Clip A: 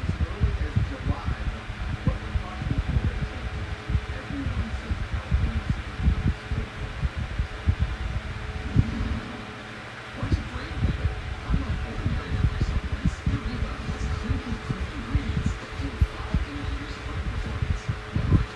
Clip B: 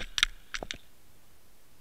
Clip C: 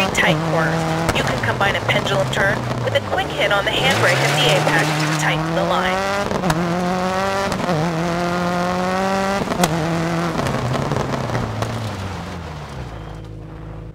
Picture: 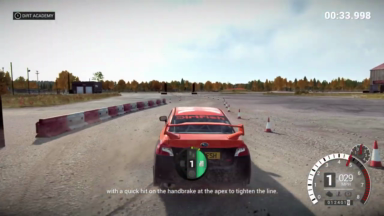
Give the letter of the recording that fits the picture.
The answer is C